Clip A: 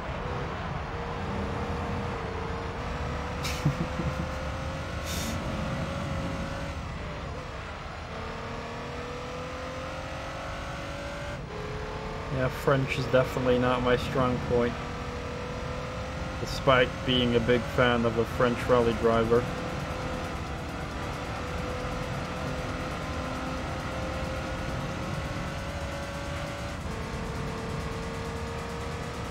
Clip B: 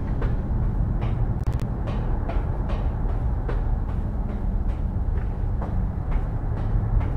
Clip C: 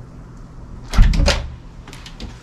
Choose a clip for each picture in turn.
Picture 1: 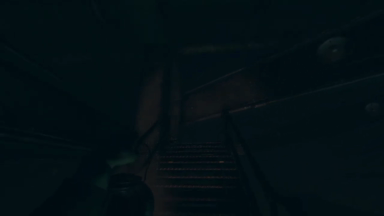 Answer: B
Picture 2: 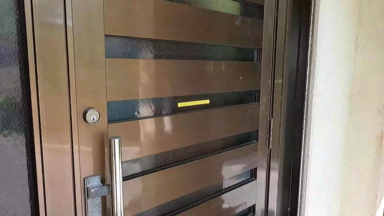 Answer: C